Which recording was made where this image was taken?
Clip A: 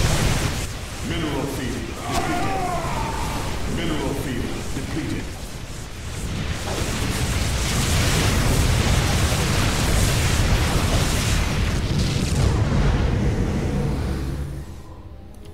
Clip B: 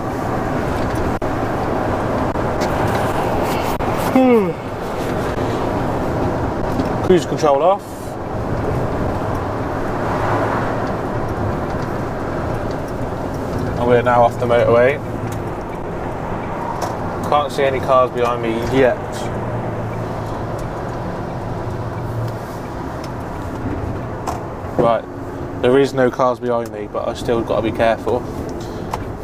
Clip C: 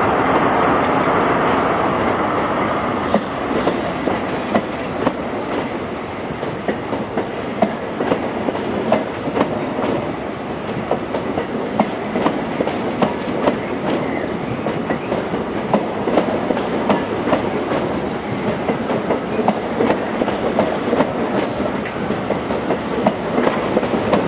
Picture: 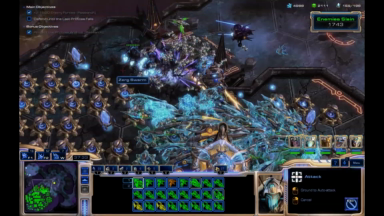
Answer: A